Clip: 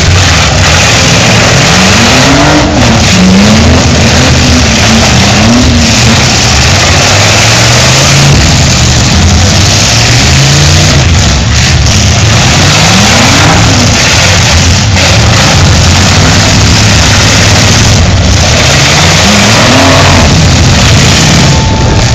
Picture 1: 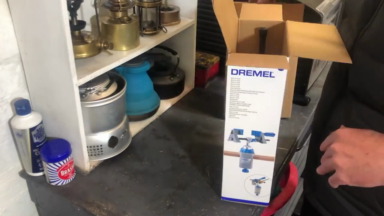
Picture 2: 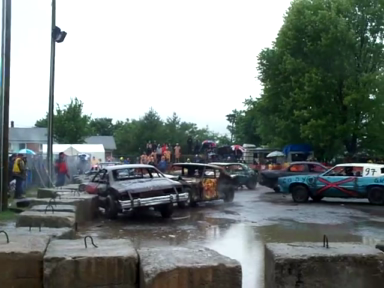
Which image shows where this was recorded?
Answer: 2